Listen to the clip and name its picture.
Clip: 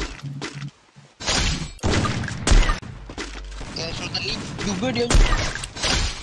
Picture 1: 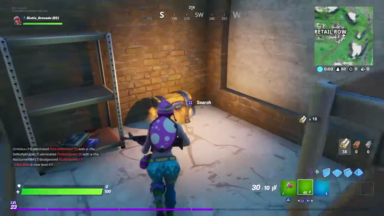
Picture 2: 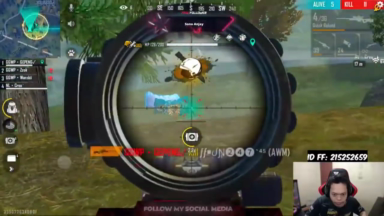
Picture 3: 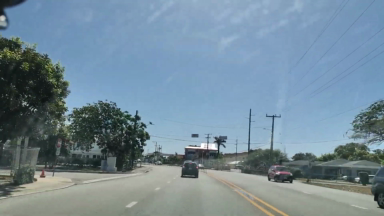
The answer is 2